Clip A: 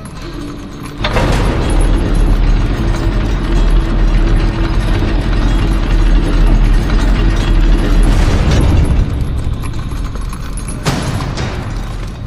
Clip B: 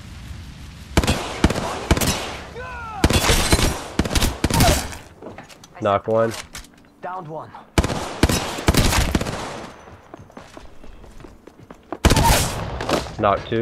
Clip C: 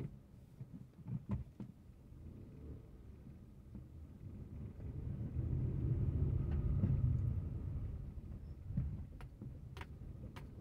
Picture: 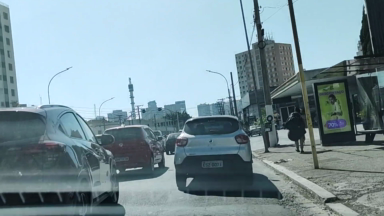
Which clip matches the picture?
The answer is C